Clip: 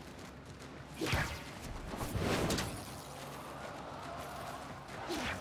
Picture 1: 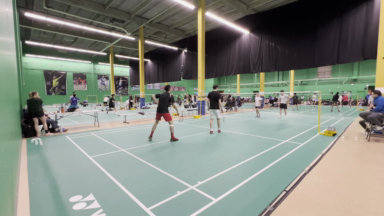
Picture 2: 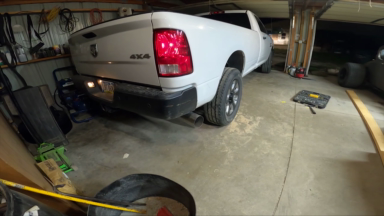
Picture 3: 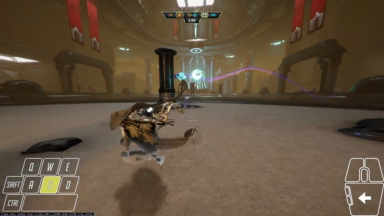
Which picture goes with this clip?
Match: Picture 3